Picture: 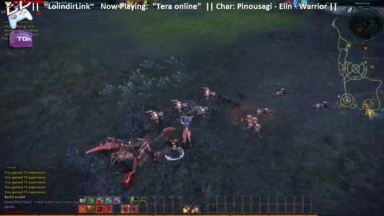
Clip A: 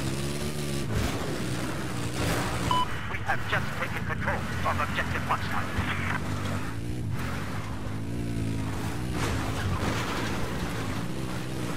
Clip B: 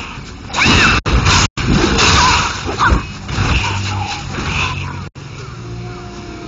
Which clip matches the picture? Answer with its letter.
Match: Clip B